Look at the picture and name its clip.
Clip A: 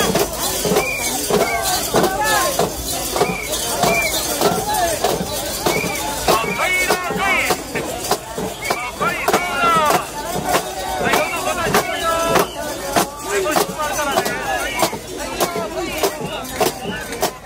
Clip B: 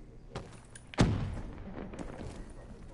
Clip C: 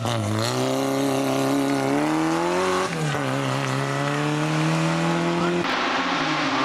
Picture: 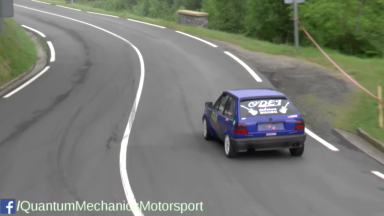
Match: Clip C